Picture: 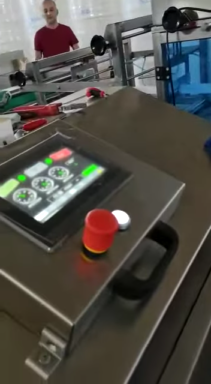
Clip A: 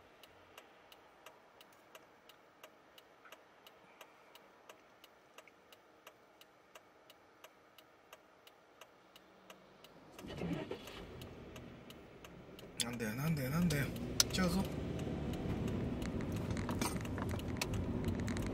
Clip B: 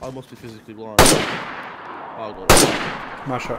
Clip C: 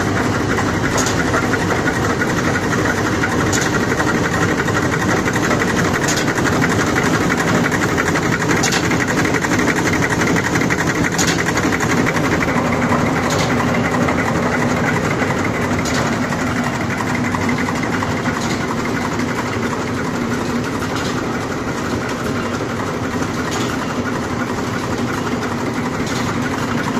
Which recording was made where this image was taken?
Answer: C